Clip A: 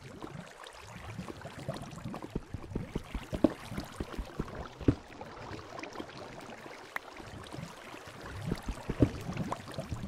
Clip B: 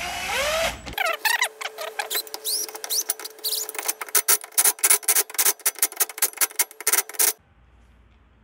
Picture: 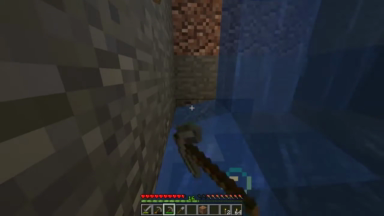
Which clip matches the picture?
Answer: A